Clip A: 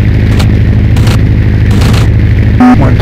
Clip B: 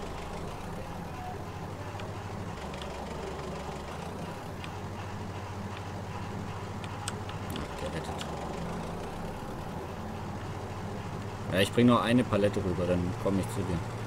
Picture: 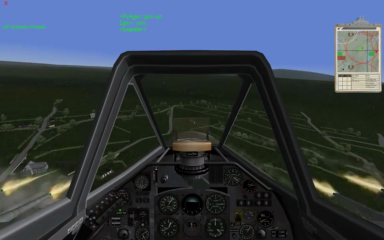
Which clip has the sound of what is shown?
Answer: A